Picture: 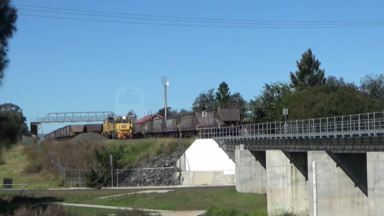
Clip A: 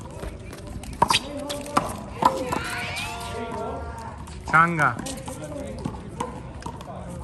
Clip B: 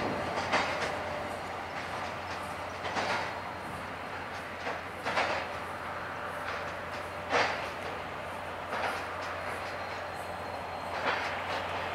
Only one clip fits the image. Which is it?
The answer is B